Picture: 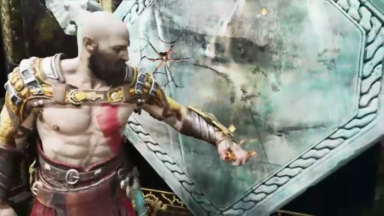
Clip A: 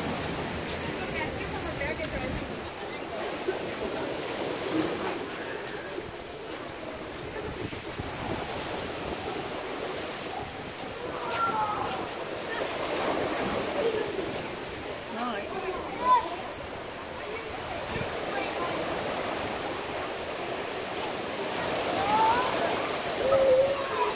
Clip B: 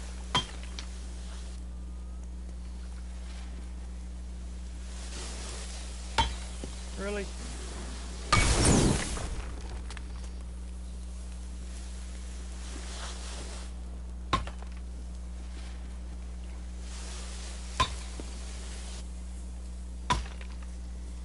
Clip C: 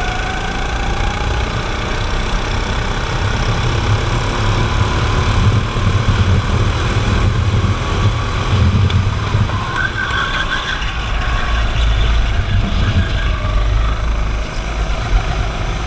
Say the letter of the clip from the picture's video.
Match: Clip B